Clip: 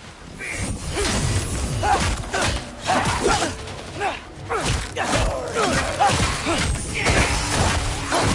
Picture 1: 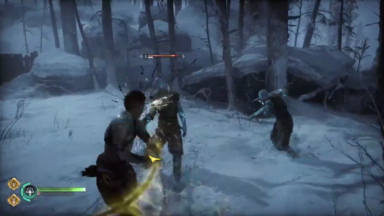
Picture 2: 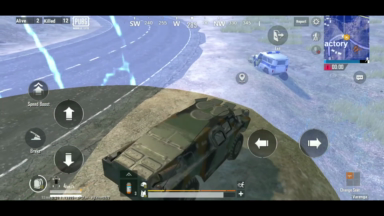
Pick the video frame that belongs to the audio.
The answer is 1